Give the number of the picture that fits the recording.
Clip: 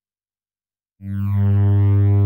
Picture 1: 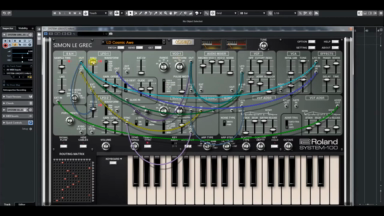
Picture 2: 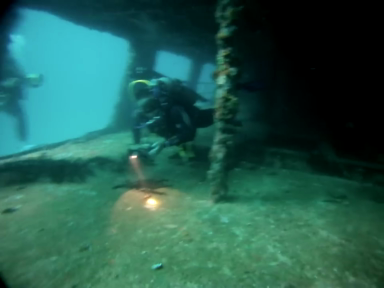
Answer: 1